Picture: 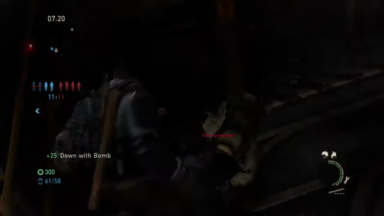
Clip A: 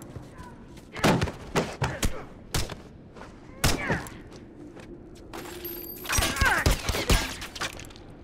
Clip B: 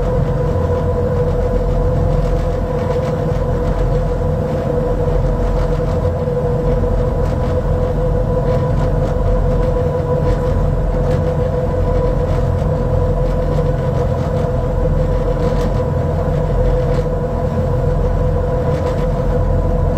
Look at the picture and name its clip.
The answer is A